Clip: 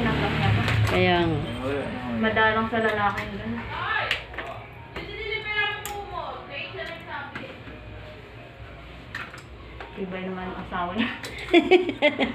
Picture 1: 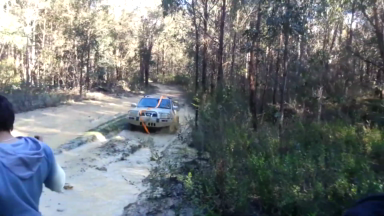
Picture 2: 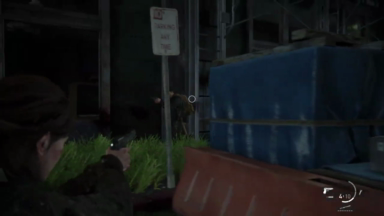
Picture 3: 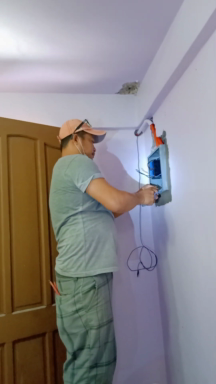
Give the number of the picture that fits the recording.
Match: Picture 3